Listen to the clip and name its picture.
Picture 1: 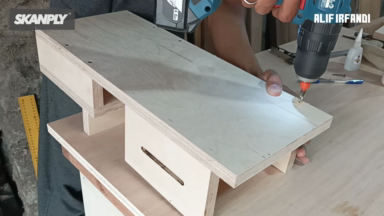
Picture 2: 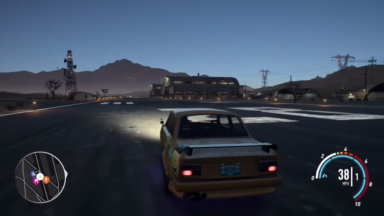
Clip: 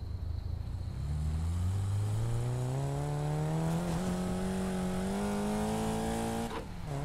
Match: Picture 2